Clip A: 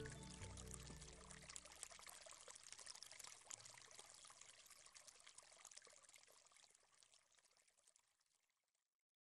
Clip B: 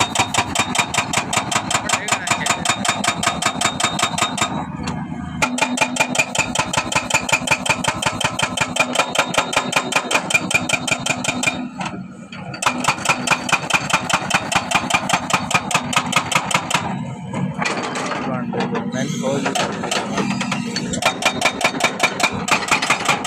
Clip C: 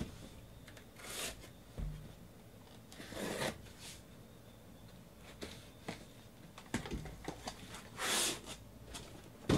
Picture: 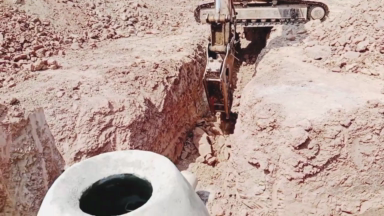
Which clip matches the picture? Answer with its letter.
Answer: B